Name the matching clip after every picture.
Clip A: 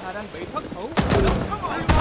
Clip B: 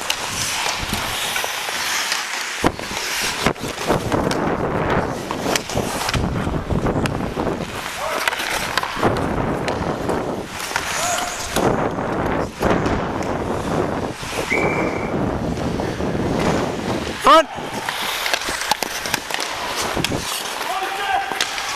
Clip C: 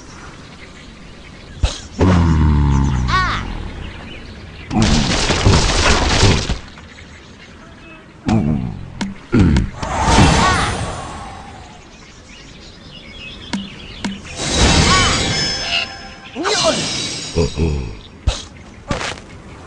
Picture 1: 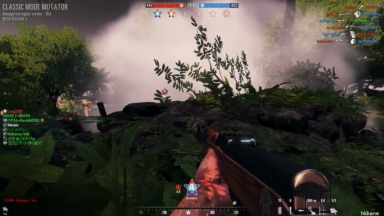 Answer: A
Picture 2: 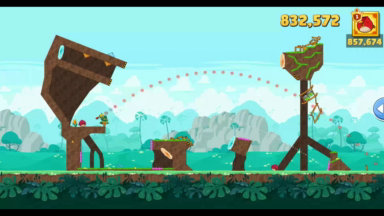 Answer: C